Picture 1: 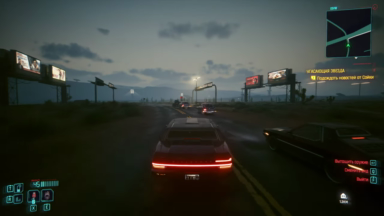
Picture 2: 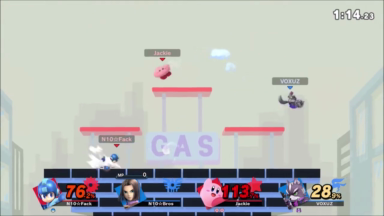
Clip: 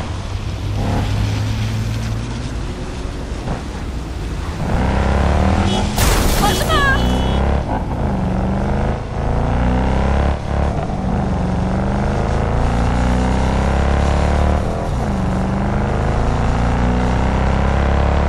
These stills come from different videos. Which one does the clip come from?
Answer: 1